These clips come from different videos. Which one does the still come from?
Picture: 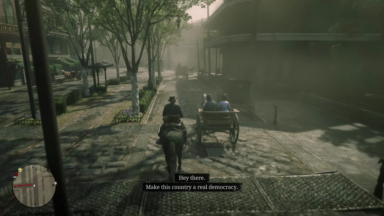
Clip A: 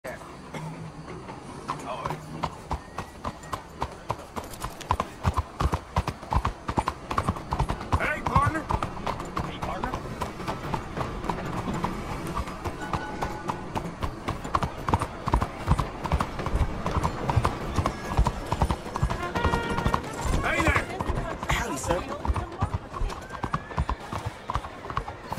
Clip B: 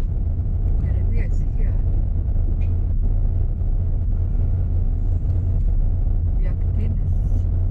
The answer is A